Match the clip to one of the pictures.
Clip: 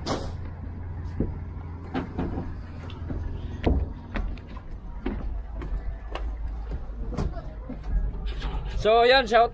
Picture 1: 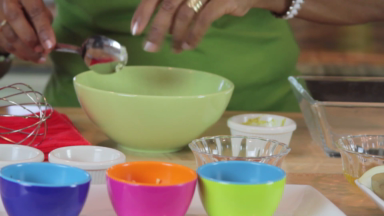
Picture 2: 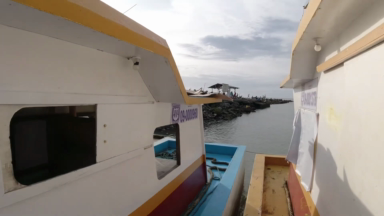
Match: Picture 2